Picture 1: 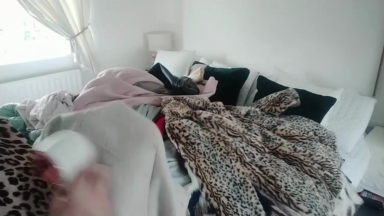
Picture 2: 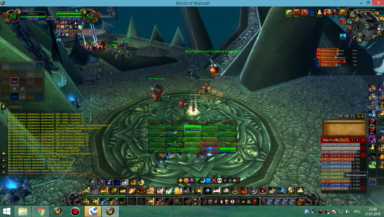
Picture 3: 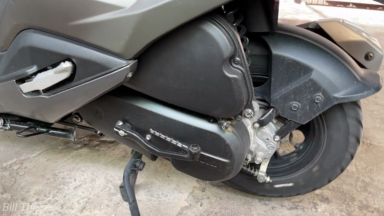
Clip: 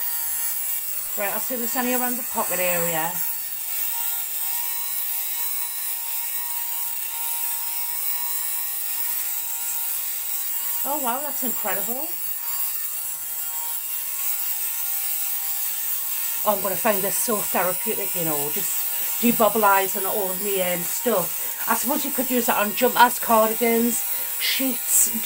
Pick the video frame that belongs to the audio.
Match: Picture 1